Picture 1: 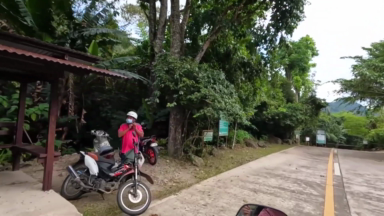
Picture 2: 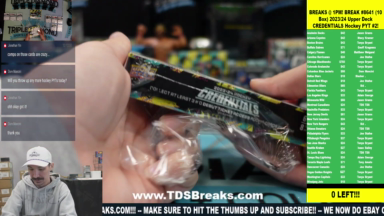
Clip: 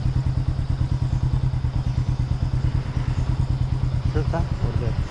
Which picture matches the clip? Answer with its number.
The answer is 1